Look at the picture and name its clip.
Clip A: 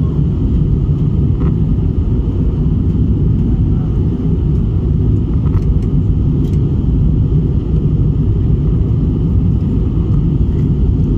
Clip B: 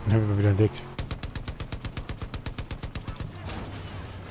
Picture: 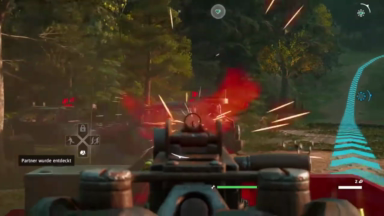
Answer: B